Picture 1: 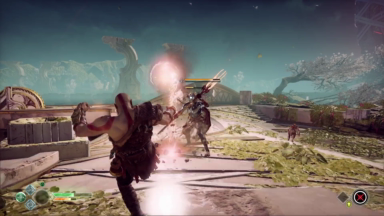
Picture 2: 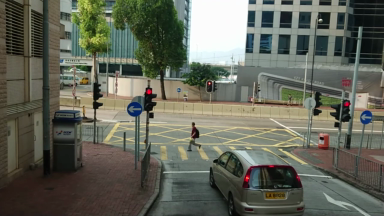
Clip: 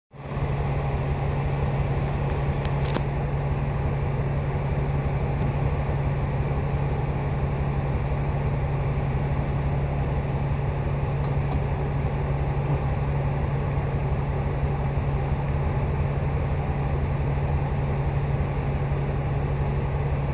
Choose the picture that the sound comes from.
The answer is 2